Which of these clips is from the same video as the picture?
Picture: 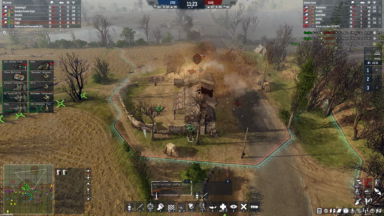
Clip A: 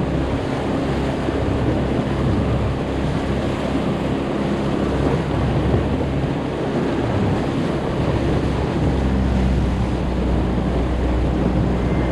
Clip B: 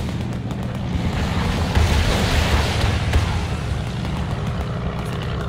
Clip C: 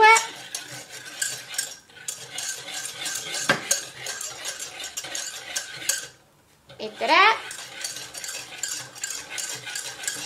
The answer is B